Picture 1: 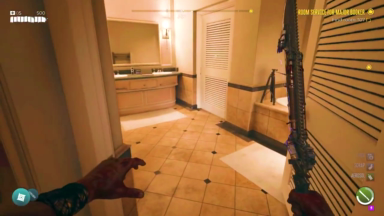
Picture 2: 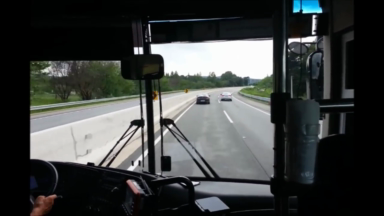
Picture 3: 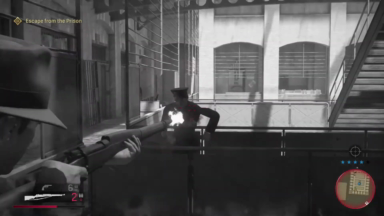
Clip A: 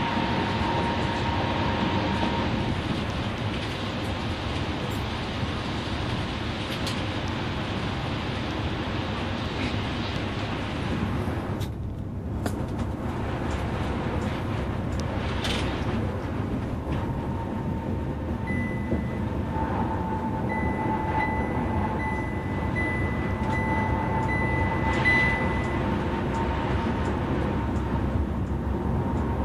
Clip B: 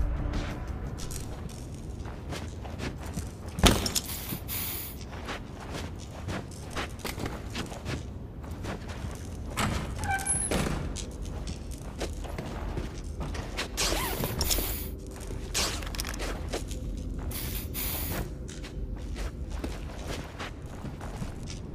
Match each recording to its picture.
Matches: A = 2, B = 1